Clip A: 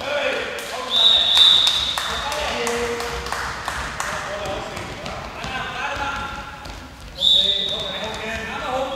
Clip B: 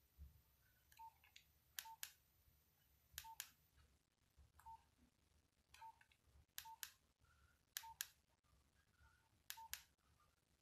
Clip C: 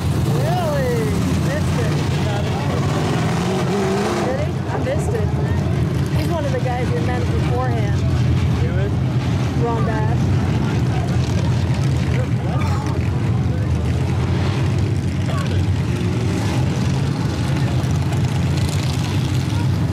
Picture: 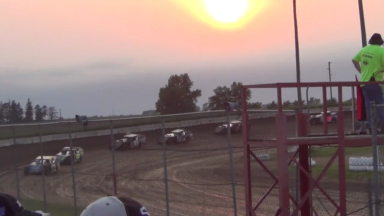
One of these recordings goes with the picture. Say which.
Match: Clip C